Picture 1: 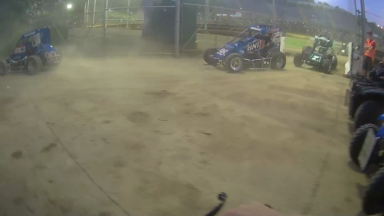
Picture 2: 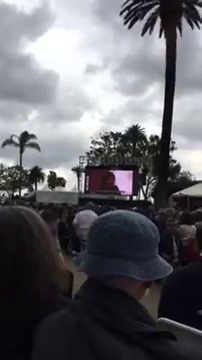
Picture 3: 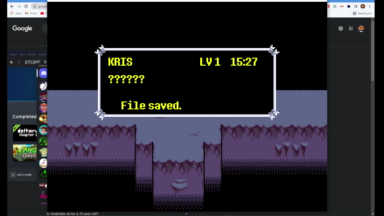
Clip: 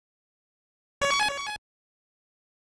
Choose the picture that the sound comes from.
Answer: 3